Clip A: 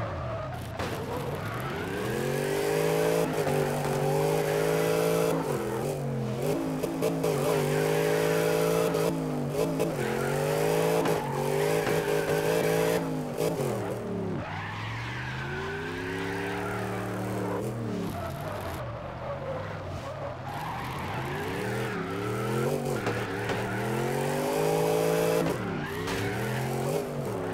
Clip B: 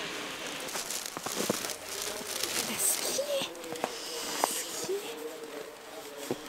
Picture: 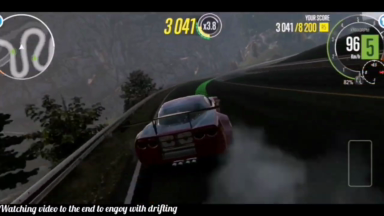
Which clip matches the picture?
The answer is A